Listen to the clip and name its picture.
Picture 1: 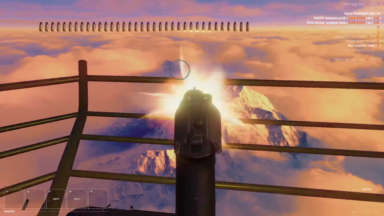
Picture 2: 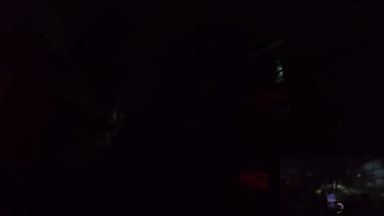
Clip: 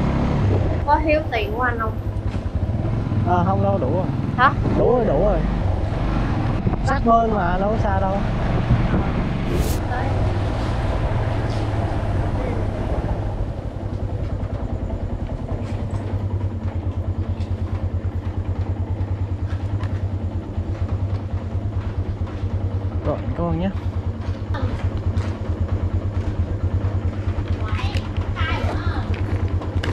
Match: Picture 2